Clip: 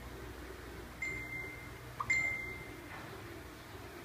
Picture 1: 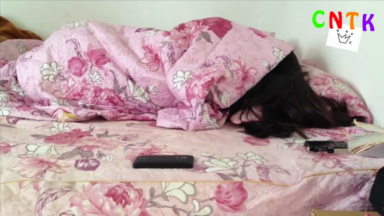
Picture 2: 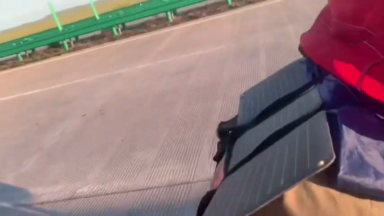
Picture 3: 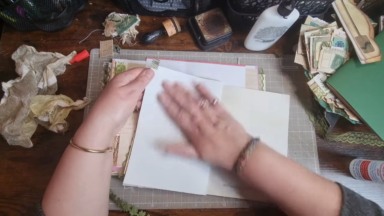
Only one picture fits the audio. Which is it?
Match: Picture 1